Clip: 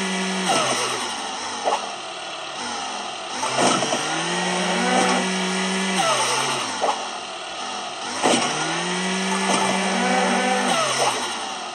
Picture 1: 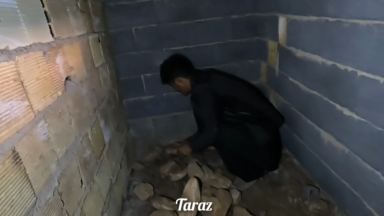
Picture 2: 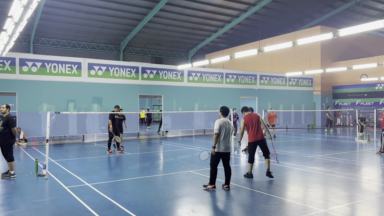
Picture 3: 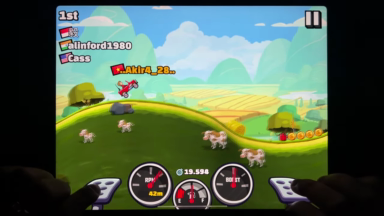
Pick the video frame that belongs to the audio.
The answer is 3